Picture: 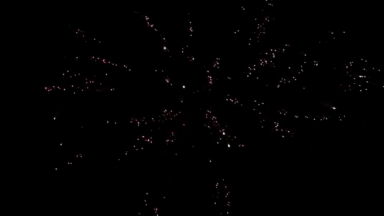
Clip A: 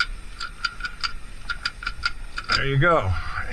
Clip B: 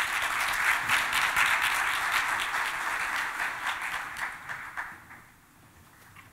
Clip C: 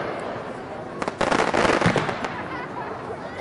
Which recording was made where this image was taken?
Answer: C